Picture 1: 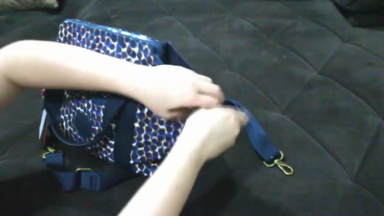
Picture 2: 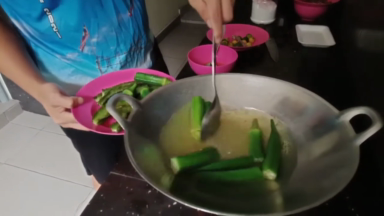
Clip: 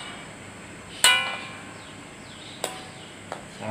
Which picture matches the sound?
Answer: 2